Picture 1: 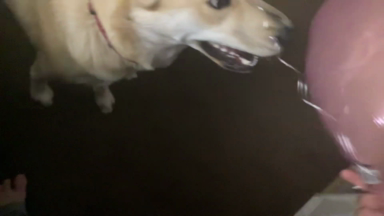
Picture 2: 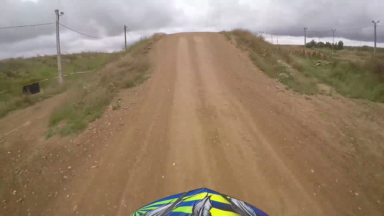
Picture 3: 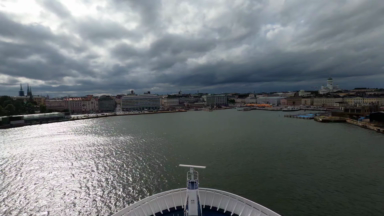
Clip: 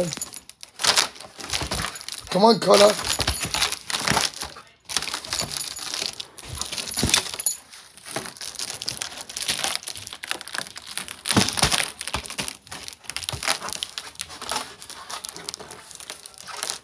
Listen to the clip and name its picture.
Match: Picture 1